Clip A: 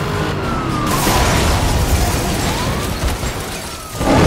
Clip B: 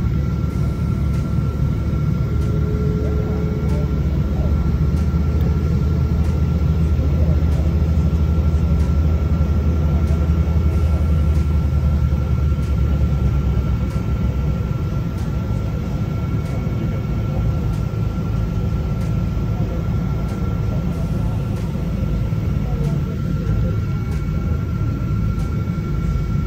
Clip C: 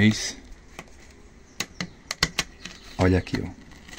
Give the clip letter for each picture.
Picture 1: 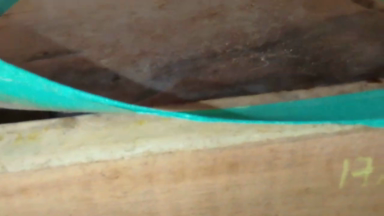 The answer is C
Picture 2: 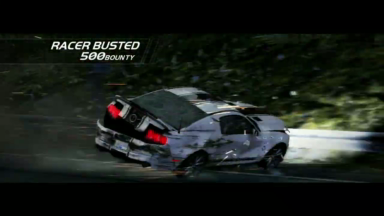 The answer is A